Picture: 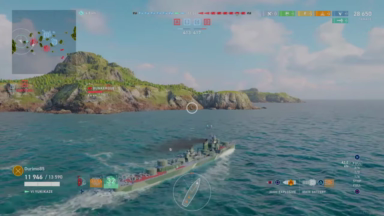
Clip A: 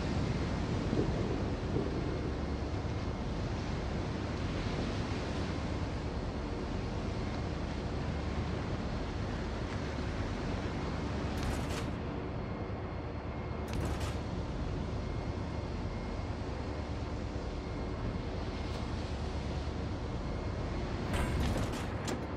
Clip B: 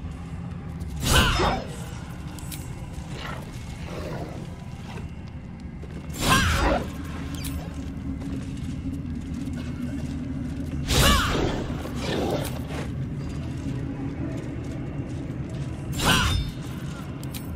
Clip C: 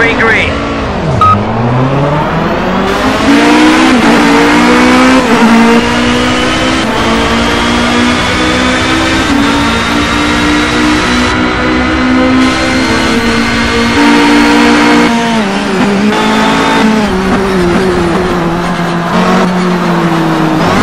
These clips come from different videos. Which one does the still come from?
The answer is A